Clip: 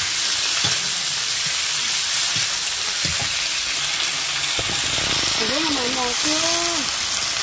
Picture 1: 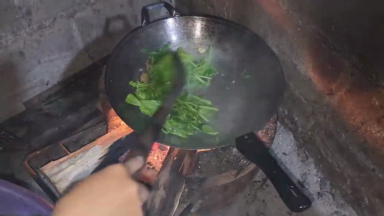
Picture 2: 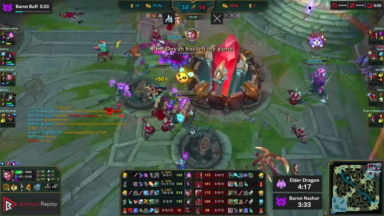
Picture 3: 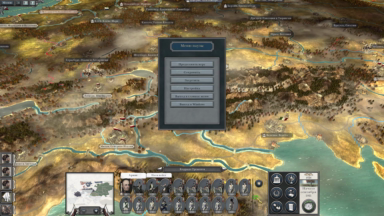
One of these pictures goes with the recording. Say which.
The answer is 1